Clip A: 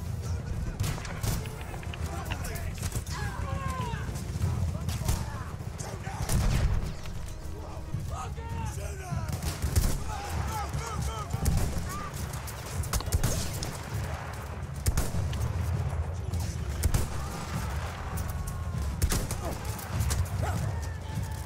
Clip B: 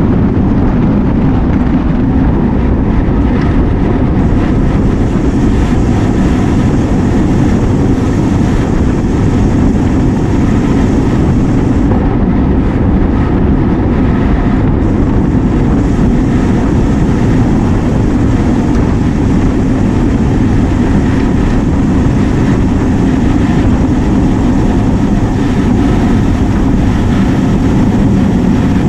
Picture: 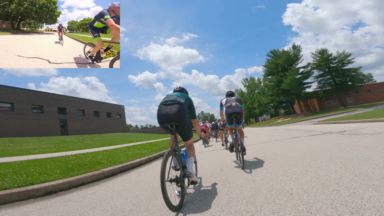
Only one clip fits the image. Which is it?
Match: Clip B